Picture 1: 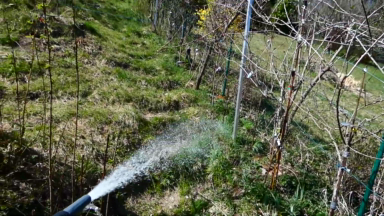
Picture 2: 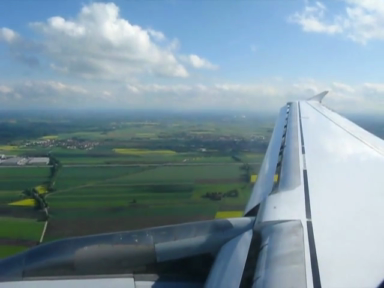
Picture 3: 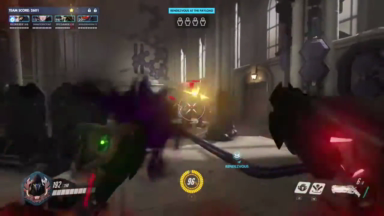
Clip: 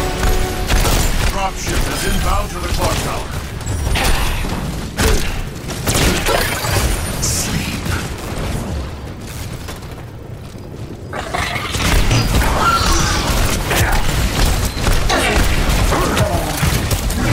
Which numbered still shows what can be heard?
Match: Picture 3